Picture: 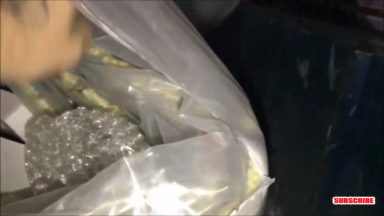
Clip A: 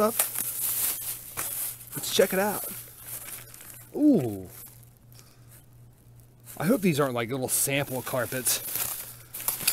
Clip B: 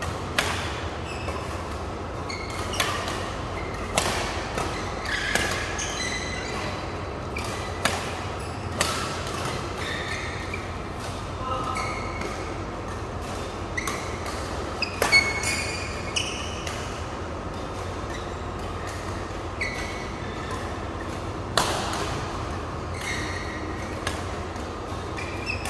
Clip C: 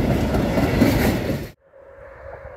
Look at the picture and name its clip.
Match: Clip A